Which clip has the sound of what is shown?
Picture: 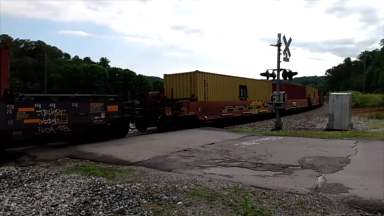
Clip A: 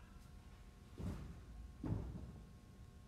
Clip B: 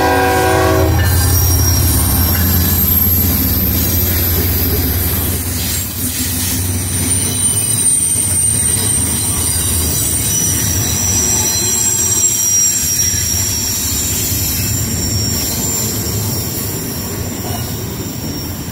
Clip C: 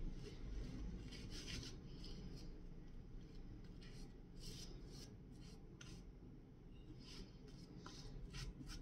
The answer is B